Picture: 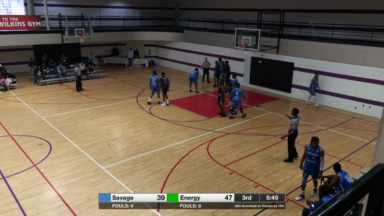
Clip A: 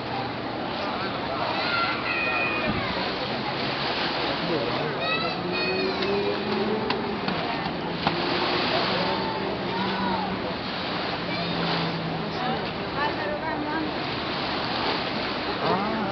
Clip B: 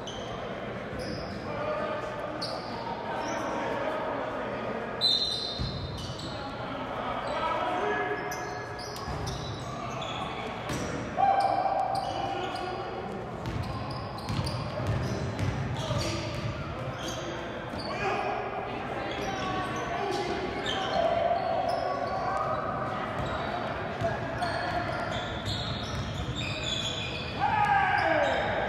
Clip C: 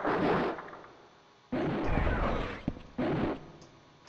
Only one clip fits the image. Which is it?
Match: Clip B